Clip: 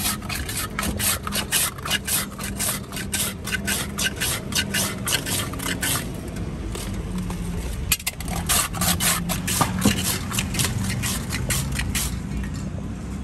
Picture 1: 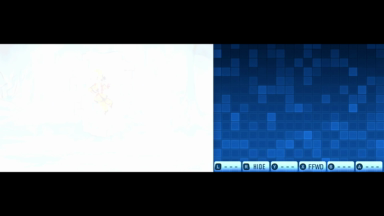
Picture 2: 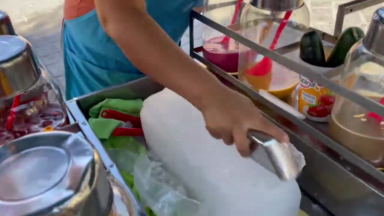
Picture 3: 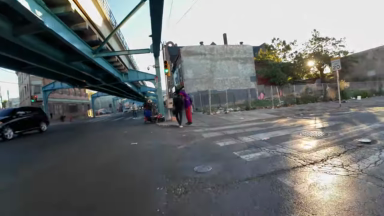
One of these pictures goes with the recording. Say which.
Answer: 2